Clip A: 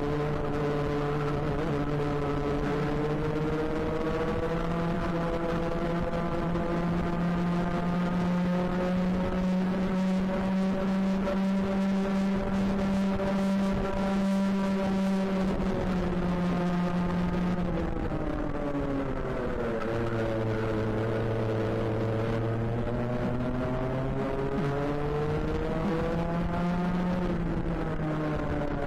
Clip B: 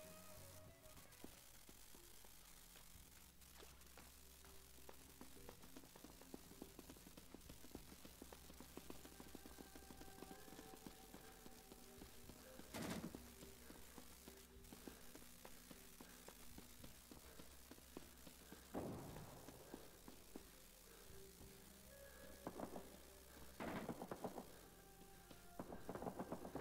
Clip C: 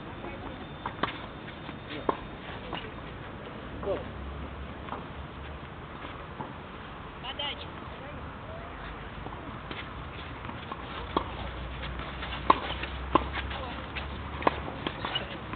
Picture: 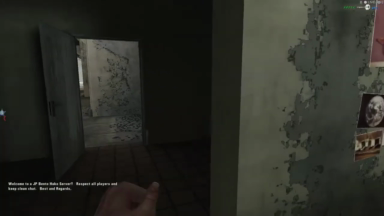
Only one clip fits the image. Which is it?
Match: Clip B